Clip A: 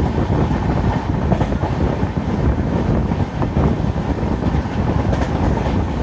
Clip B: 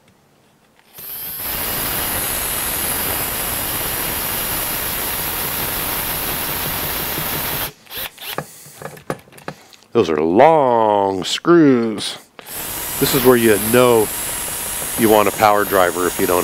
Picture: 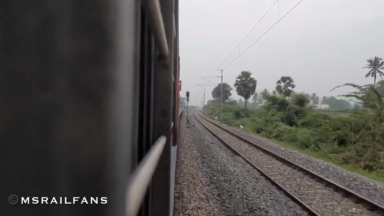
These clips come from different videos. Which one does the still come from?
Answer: A